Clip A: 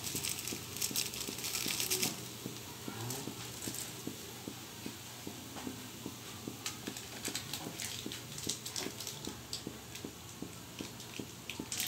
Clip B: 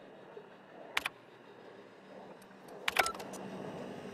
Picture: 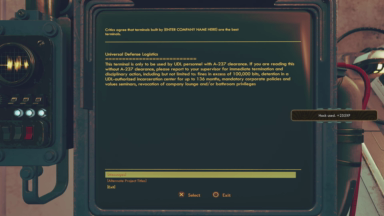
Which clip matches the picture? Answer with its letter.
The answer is B